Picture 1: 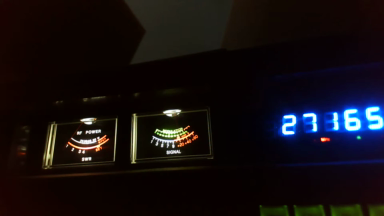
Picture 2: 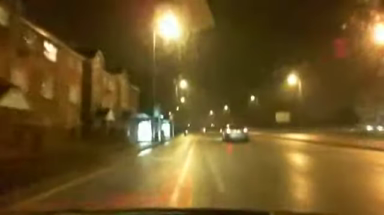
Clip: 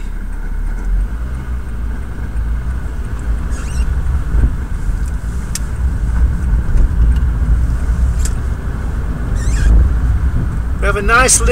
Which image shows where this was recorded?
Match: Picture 2